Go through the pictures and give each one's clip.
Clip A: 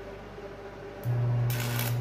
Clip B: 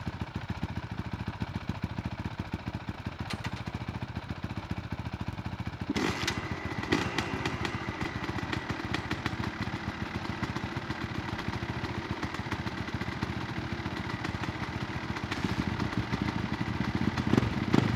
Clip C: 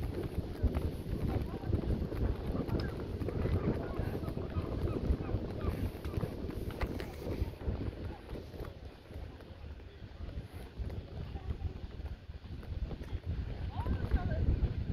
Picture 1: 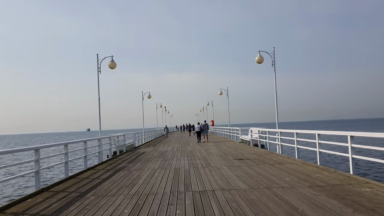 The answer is C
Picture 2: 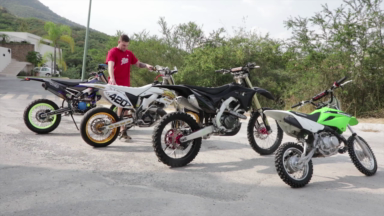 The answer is B